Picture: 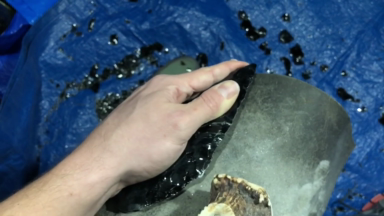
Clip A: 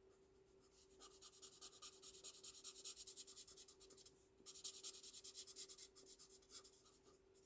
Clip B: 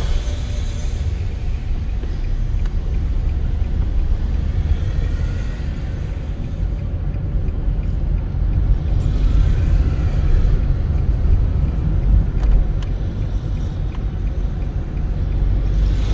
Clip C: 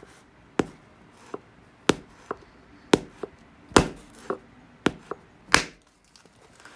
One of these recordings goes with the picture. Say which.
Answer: C